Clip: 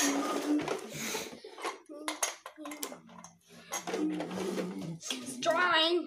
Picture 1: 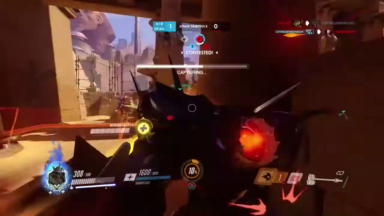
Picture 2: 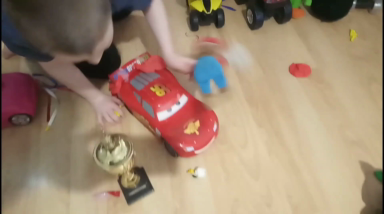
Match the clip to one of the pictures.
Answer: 2